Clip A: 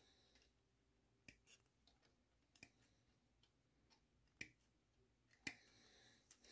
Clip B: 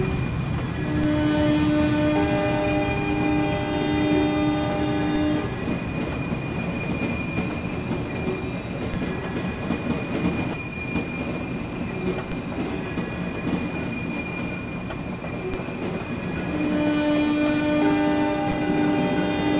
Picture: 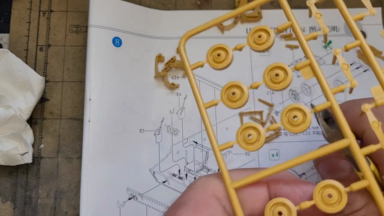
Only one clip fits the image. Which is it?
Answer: A